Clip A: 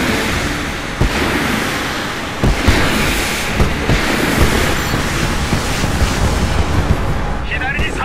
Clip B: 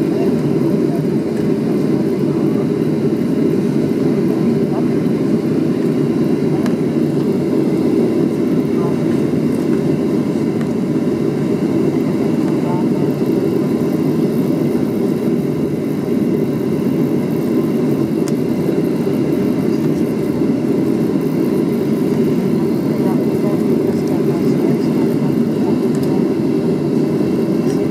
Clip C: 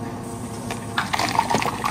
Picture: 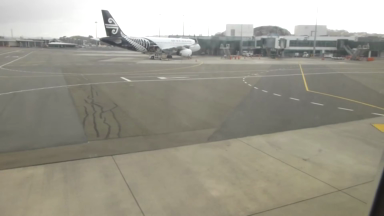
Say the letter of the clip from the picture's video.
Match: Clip B